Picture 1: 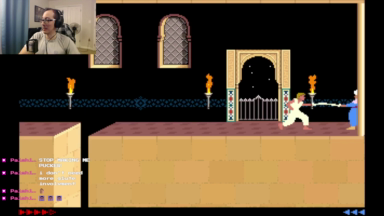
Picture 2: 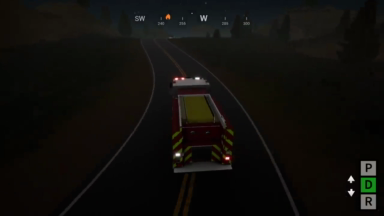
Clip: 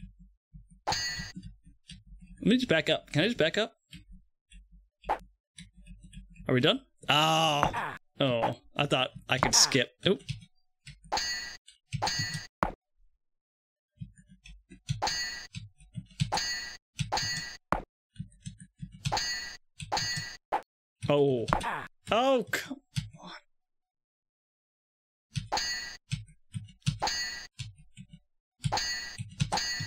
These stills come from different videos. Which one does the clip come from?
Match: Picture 1